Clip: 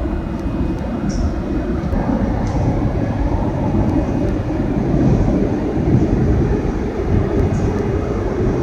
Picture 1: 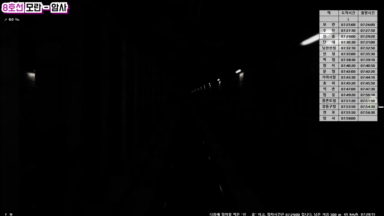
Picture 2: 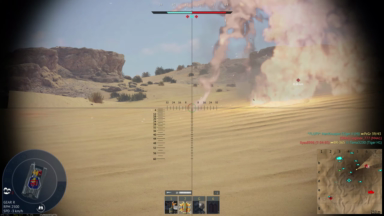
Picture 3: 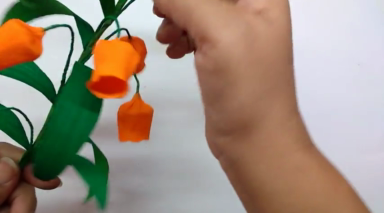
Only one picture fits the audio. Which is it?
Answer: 1